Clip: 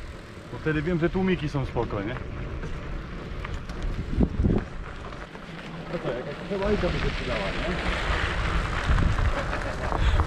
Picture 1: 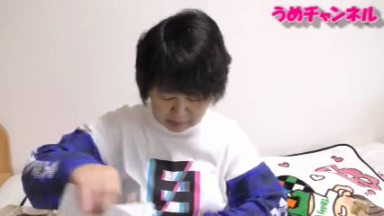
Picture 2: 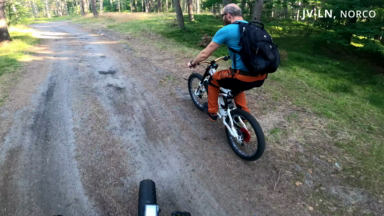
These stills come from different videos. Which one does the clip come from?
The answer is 2